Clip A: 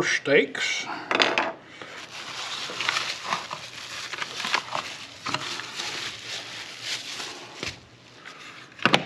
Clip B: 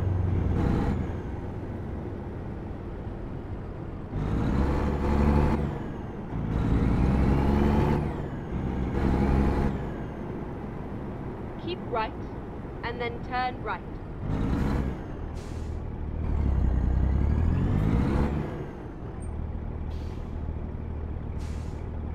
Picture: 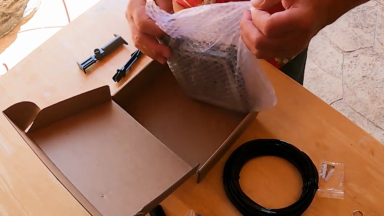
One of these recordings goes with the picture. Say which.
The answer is A